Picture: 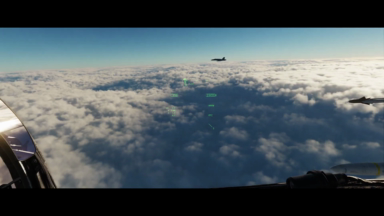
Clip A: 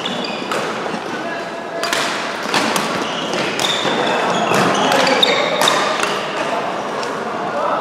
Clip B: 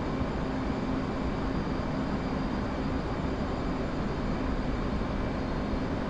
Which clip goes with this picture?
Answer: B